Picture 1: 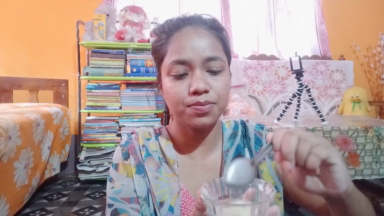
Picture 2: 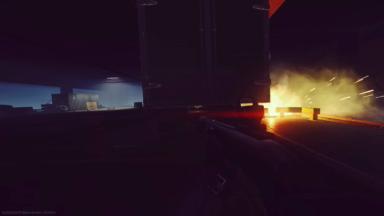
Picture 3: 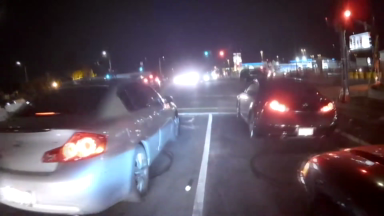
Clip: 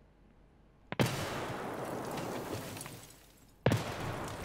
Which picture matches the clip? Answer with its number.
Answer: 2